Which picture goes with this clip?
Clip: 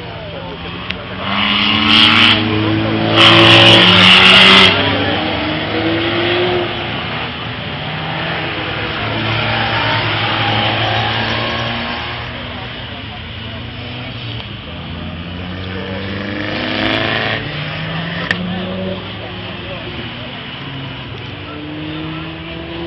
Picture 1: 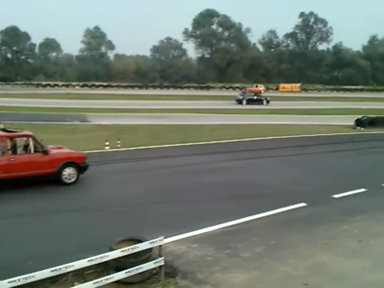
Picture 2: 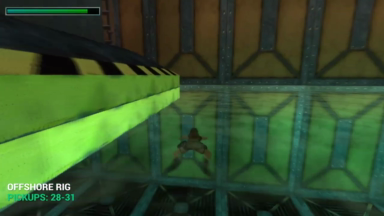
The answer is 1